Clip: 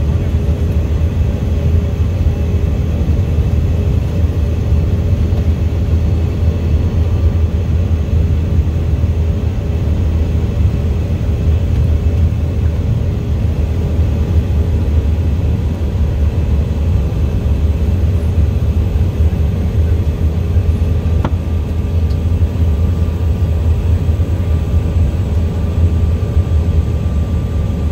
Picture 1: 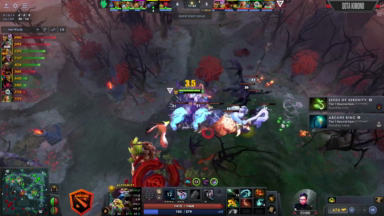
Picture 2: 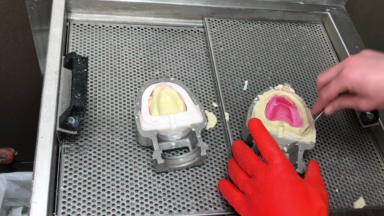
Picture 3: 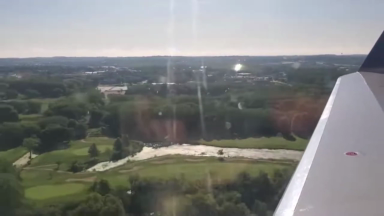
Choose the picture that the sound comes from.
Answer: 3